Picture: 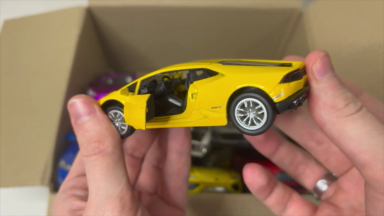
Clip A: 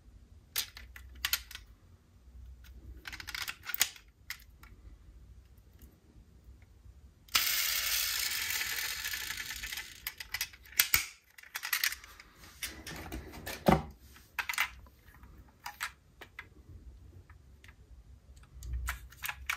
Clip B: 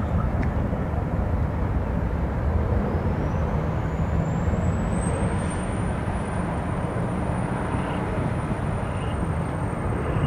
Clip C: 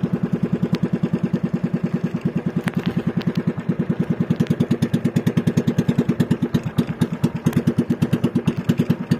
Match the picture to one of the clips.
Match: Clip A